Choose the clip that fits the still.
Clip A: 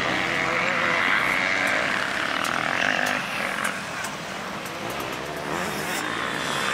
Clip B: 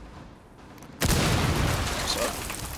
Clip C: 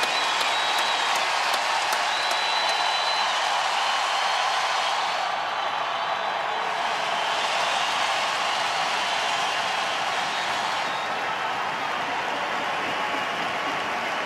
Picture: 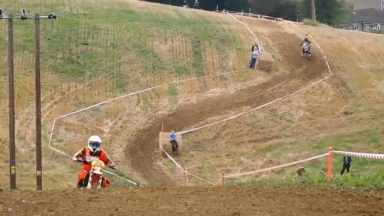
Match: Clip A